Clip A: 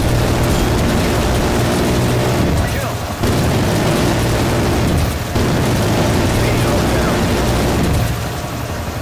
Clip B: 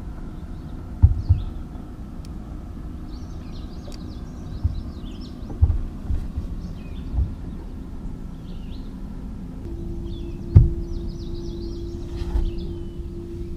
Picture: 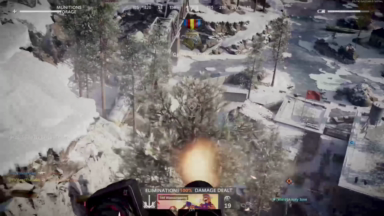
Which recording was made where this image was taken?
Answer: A